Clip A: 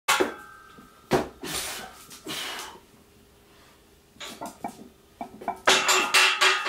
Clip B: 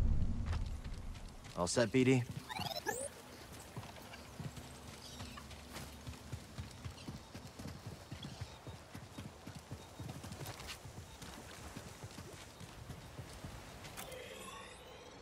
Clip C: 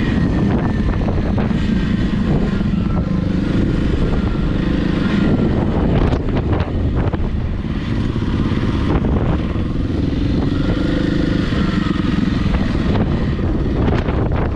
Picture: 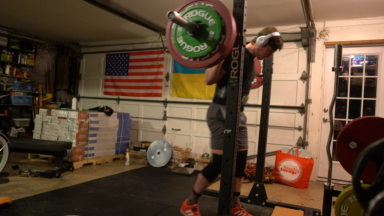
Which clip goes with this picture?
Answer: A